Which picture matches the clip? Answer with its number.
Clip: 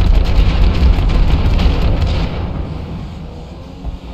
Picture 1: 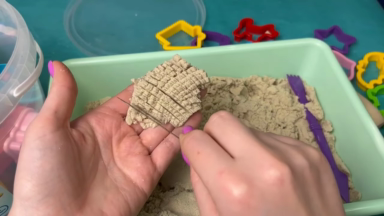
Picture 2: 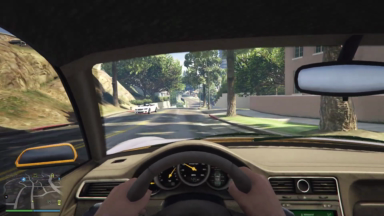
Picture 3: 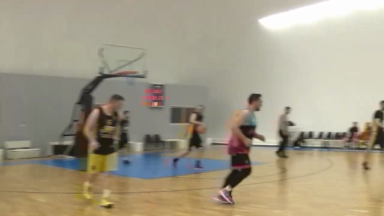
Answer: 2